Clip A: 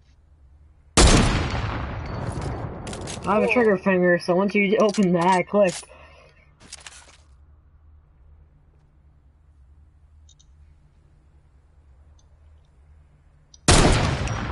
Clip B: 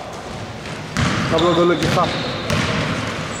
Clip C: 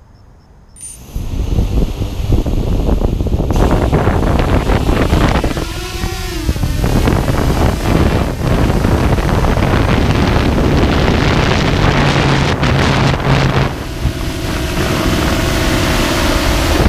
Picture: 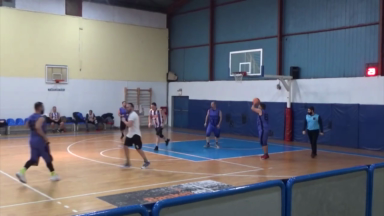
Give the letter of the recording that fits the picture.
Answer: B